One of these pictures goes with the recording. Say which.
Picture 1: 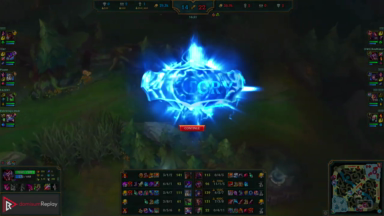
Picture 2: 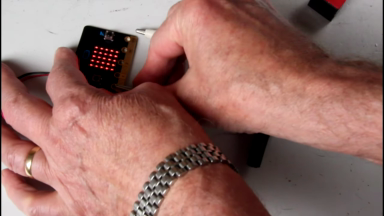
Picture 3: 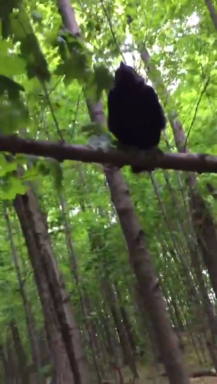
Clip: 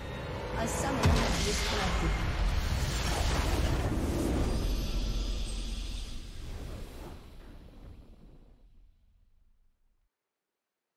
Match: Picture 1